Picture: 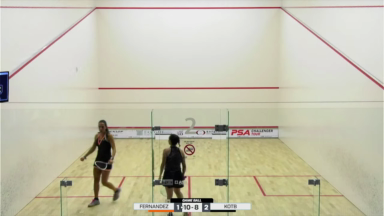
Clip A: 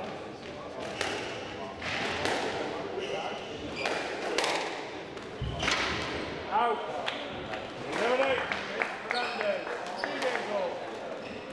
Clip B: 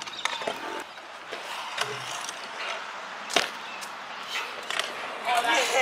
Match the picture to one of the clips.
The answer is A